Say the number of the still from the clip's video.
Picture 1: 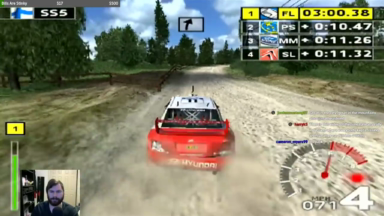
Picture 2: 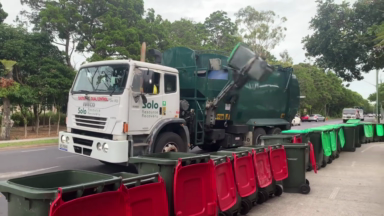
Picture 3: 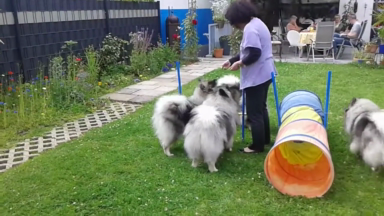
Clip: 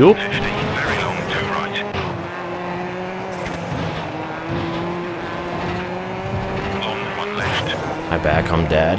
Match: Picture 1